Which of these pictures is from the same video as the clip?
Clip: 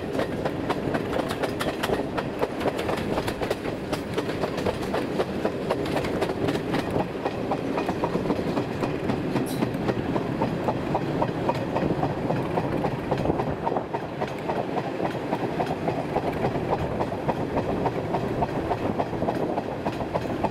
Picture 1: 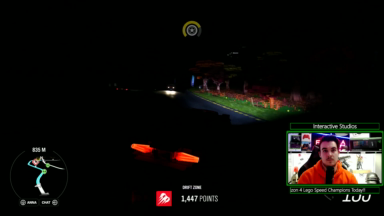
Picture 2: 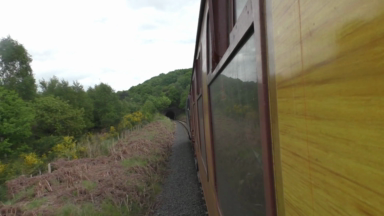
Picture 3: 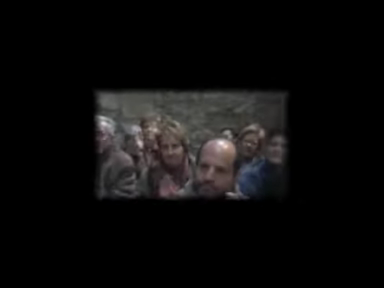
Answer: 2